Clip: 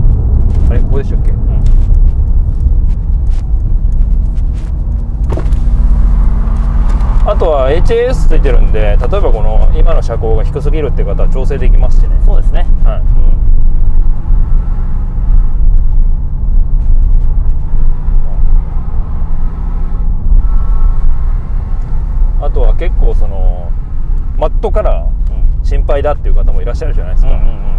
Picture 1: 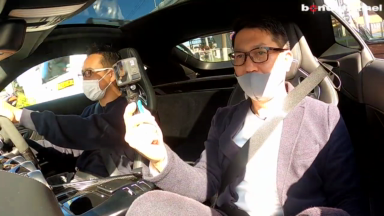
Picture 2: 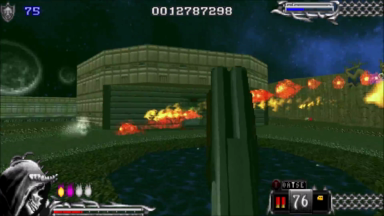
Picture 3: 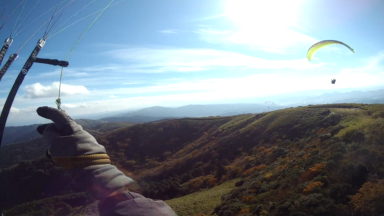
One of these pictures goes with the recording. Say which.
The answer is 1